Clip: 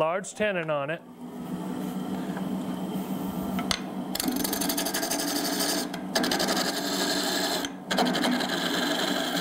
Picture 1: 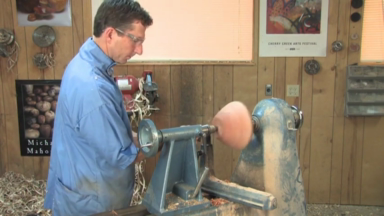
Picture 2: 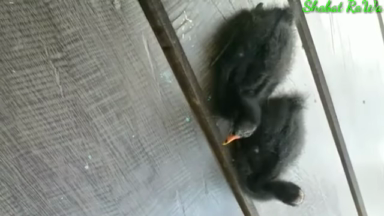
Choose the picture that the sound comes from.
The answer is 1